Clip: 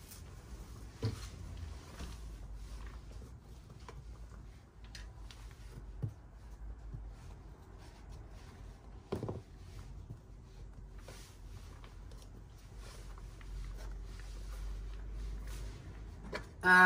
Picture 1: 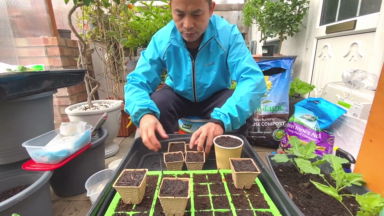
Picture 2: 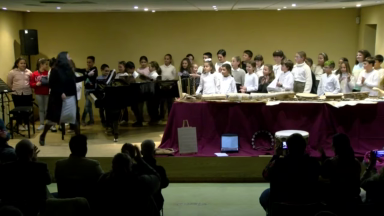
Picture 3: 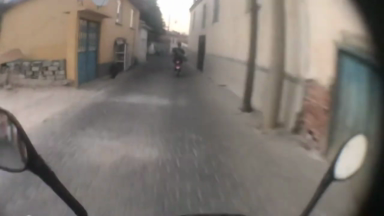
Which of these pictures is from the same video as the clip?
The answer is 1